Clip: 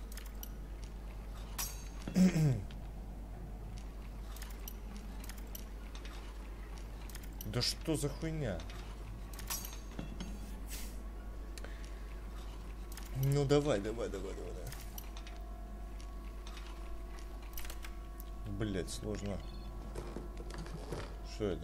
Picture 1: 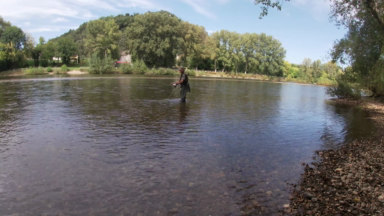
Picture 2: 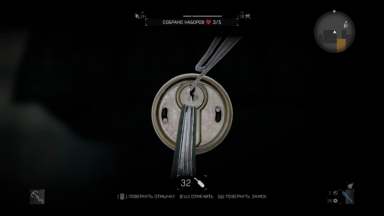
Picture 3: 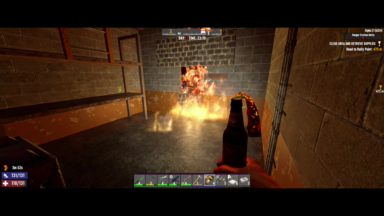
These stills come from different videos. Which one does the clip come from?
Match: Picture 2